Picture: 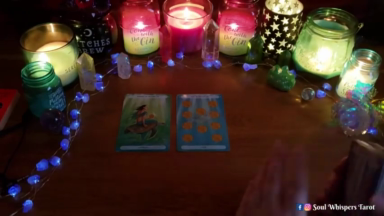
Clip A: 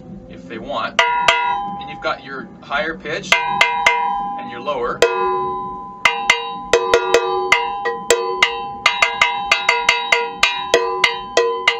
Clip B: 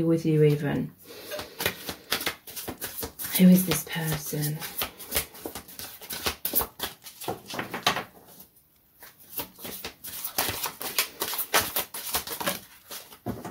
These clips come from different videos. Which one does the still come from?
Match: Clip B